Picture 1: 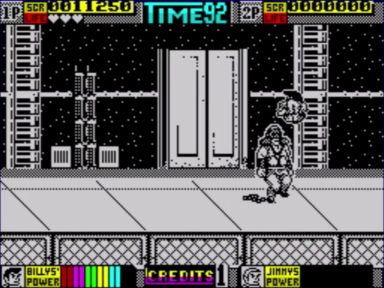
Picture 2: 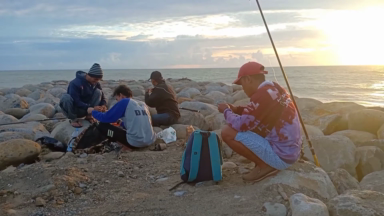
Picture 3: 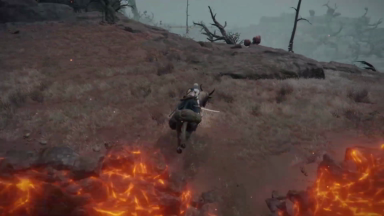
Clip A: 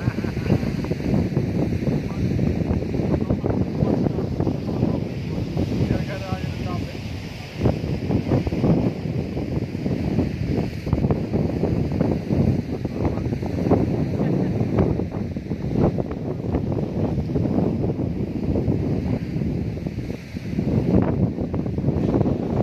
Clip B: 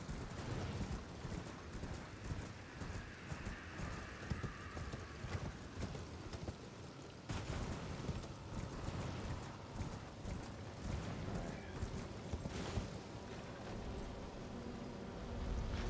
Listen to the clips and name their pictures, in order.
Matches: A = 2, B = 3